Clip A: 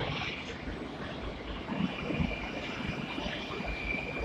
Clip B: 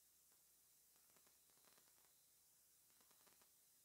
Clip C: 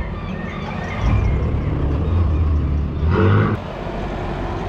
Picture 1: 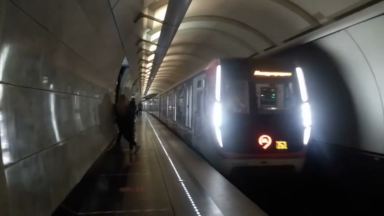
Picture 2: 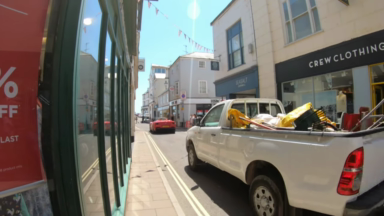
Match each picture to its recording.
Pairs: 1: A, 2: C